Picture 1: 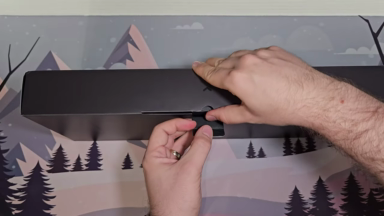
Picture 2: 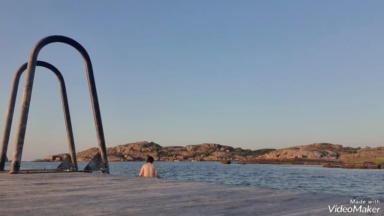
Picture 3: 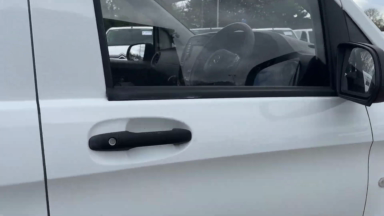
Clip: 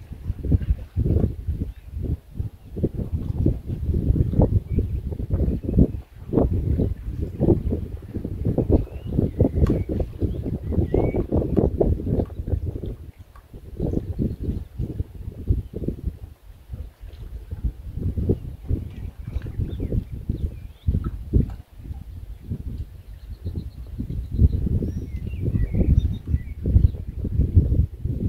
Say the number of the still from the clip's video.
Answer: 2